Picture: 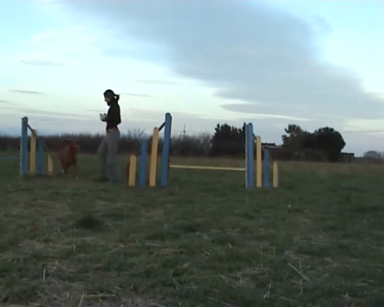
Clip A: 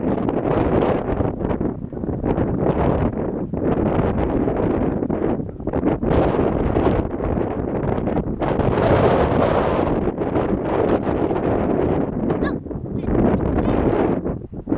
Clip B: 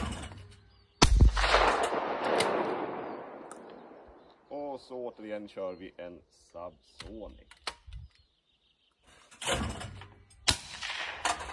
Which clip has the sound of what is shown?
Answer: A